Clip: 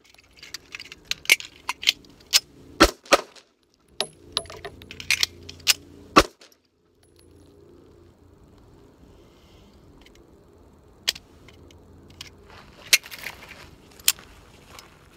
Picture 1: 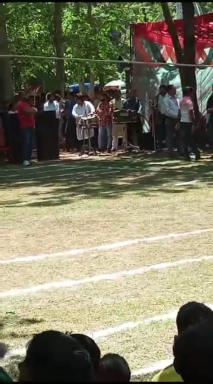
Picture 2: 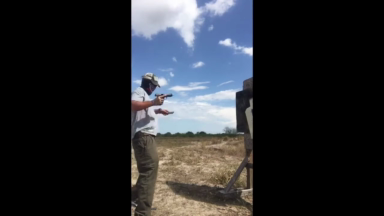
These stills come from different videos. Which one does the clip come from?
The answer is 2